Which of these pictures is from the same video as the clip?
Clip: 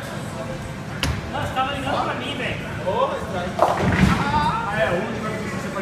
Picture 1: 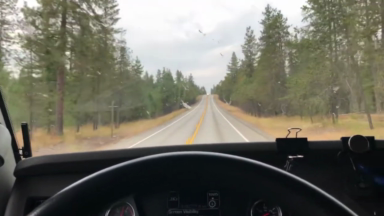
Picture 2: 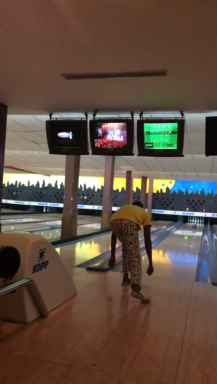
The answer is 2